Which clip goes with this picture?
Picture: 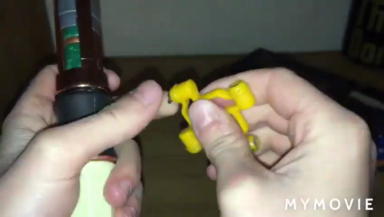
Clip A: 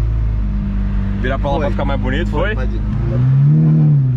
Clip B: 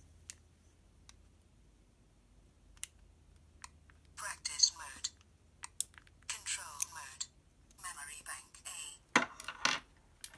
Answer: B